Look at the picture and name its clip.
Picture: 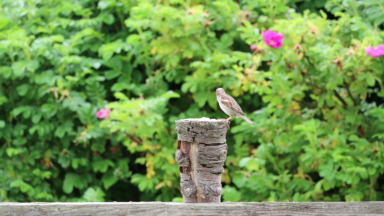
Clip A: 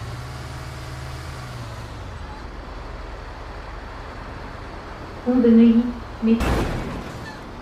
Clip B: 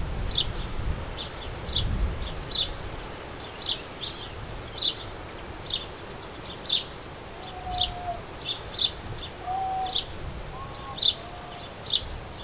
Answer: B